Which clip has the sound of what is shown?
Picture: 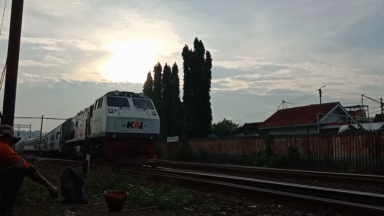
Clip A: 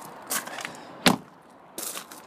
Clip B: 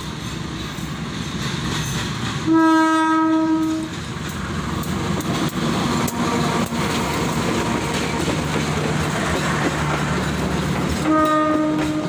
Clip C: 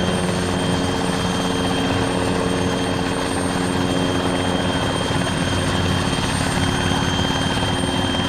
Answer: B